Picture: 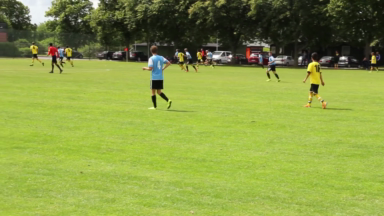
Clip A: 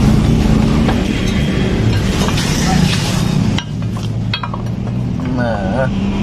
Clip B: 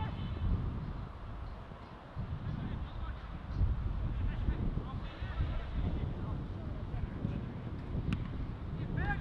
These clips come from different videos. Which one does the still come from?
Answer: B